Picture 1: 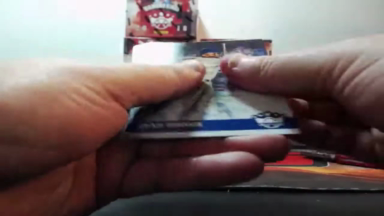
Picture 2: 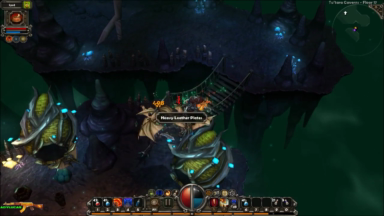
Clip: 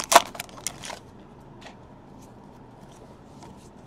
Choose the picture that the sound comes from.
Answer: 1